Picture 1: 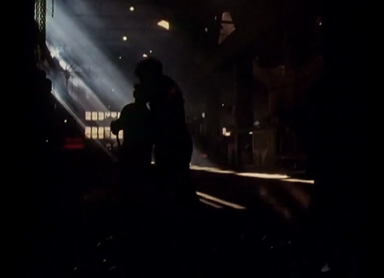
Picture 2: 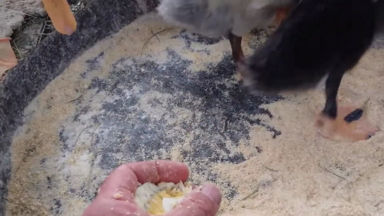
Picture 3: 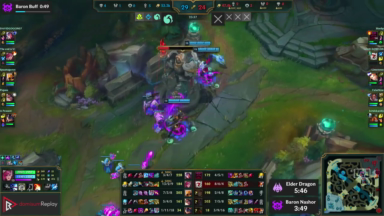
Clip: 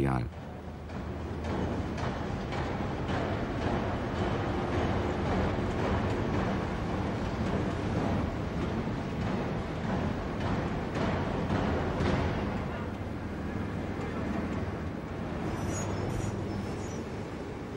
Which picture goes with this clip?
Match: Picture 1